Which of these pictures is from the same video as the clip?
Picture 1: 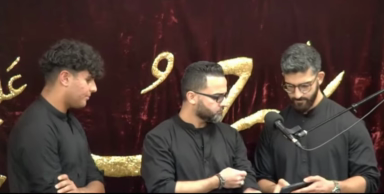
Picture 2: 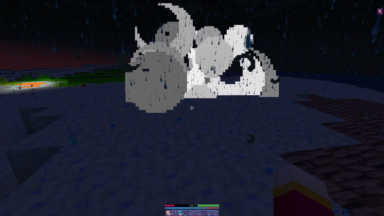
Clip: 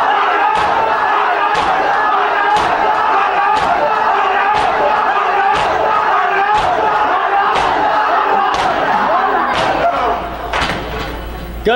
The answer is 1